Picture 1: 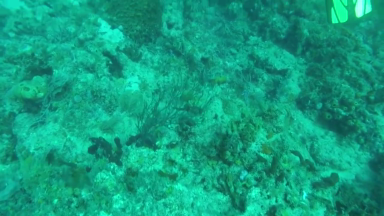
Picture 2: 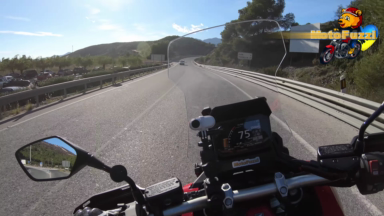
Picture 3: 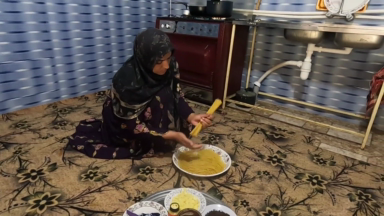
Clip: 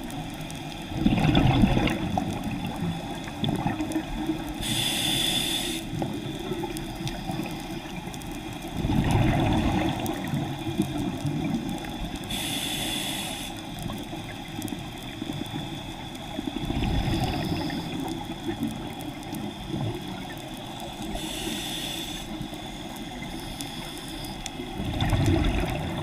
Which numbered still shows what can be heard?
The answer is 1